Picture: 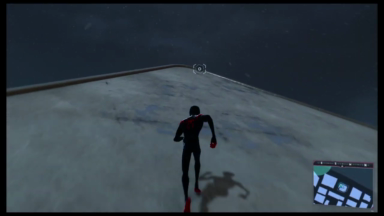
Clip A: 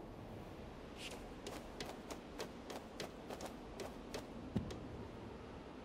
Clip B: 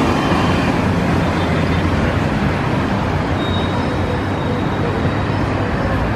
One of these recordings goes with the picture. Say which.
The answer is A